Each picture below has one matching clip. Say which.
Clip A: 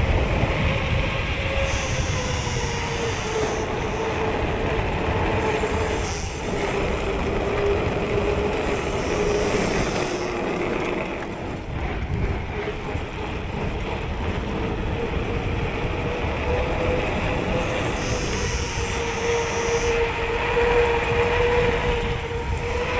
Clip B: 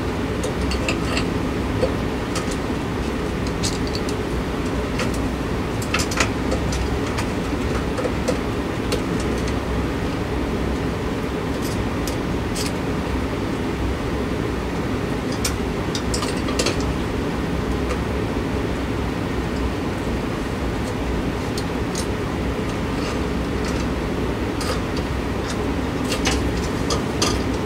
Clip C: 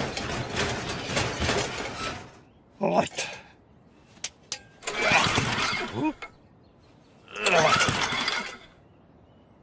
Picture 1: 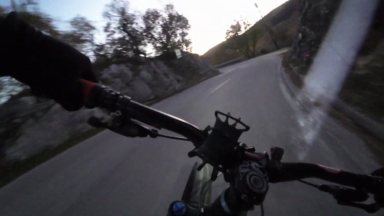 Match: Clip A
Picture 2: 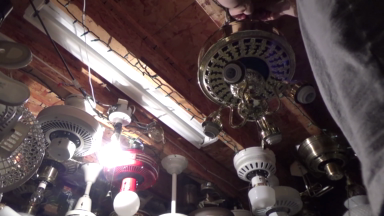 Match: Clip B